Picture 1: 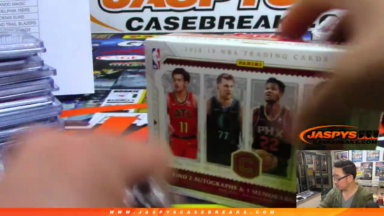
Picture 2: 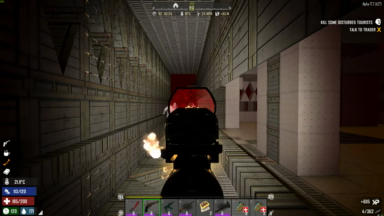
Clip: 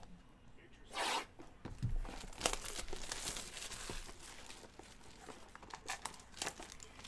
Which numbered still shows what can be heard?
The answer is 1